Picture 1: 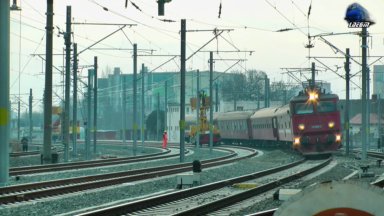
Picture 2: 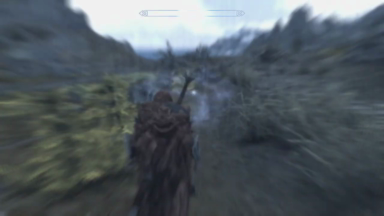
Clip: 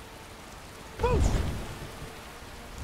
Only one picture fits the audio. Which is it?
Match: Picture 2